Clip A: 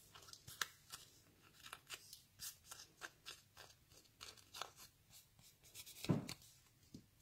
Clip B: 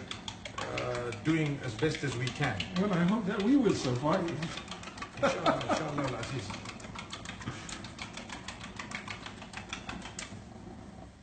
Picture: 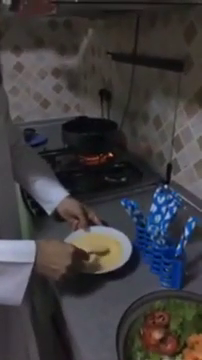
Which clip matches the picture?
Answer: B